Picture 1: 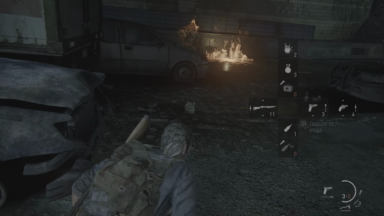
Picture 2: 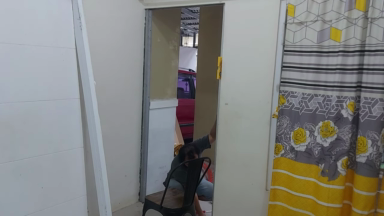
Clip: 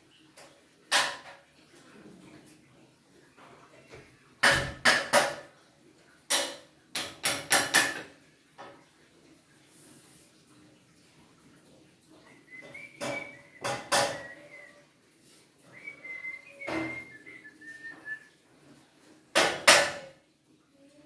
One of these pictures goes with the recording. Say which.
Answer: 2